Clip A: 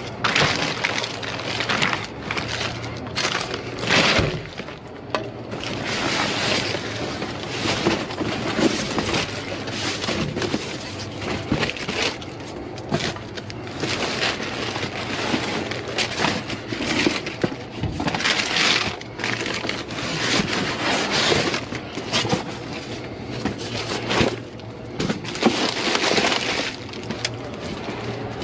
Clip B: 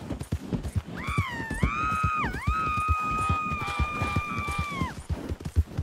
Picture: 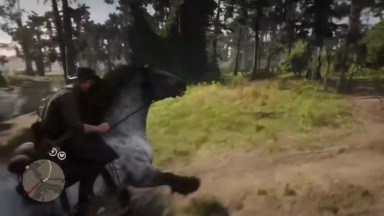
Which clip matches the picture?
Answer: B